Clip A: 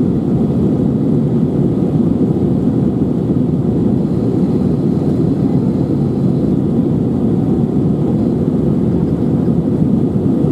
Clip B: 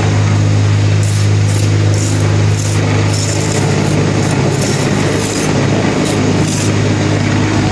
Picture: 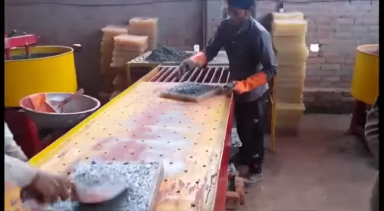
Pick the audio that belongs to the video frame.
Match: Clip B